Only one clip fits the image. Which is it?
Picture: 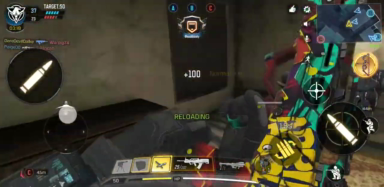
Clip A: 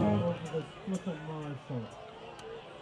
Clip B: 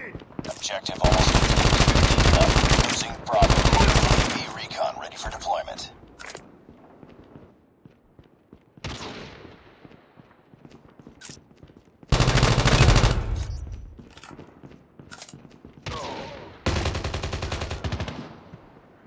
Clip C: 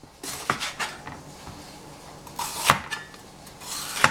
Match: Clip B